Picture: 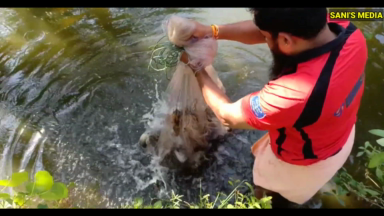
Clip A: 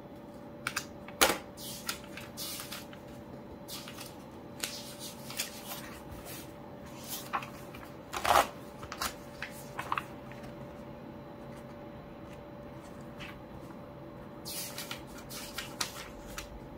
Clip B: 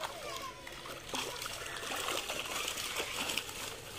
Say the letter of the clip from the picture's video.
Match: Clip B